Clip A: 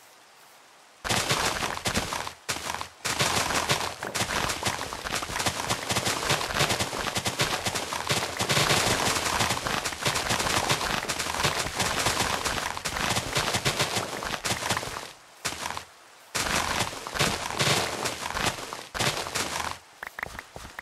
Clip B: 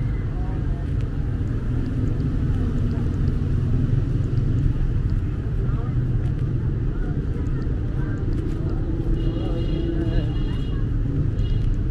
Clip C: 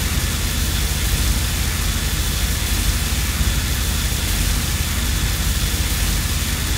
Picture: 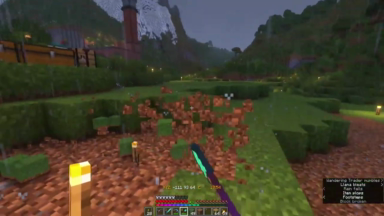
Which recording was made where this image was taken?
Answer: A